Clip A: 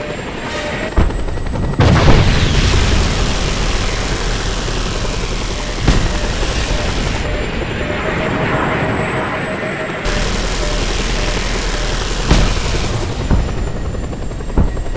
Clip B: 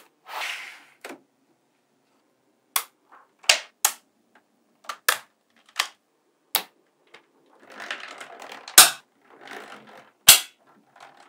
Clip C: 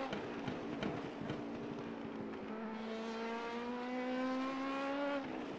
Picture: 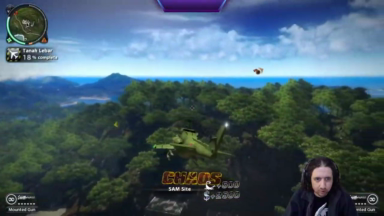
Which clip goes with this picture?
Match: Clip A